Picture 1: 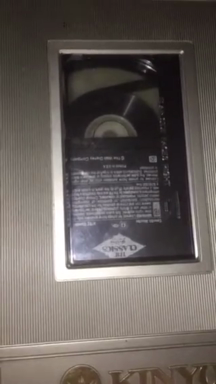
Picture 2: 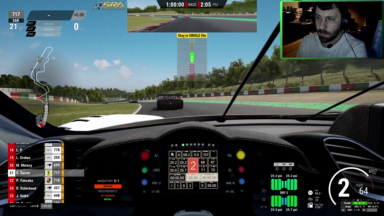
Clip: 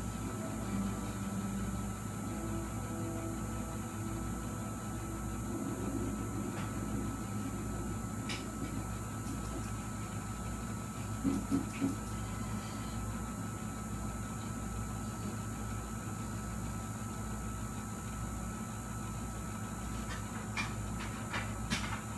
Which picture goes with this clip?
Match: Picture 1